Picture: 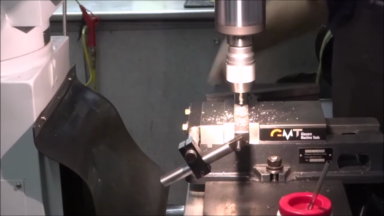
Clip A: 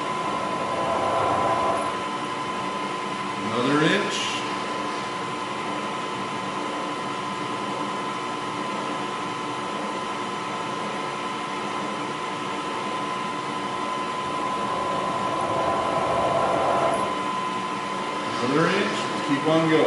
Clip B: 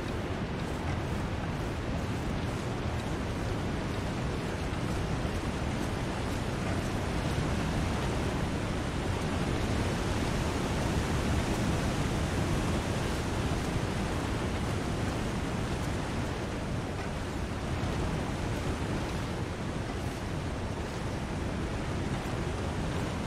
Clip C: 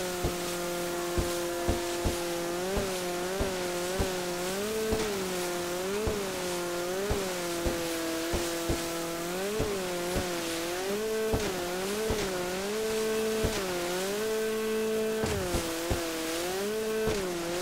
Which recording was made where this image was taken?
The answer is A